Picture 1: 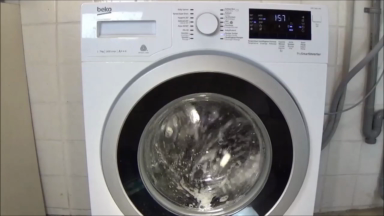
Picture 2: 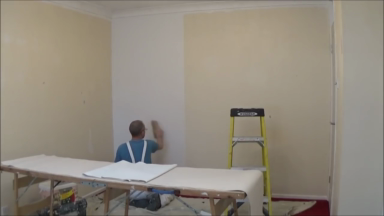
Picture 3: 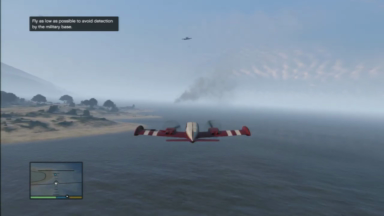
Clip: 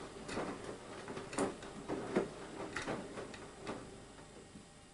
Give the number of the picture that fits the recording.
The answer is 1